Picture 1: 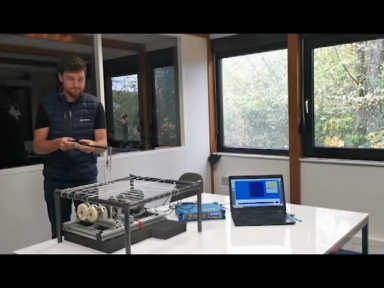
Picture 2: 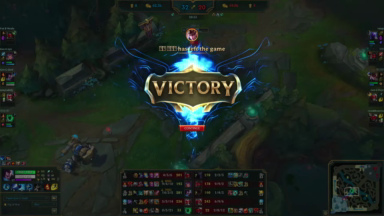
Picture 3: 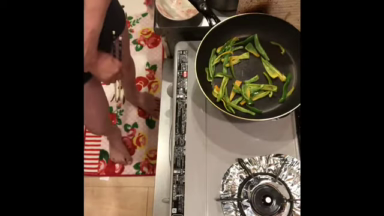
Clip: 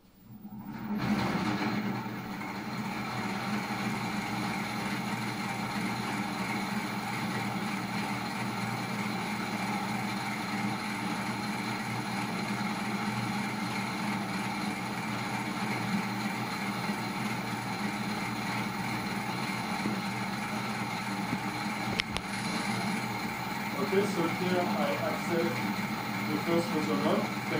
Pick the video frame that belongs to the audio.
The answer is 1